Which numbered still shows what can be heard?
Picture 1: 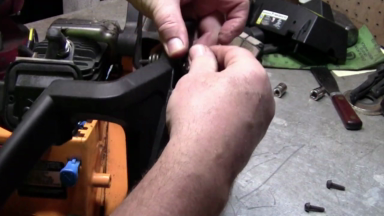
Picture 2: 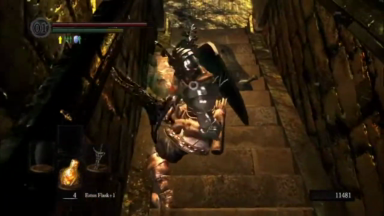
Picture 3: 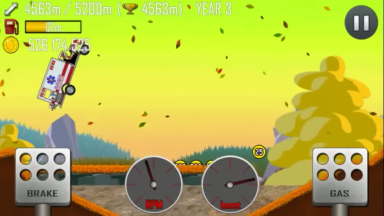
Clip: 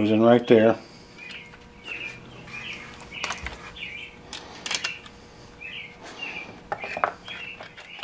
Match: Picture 1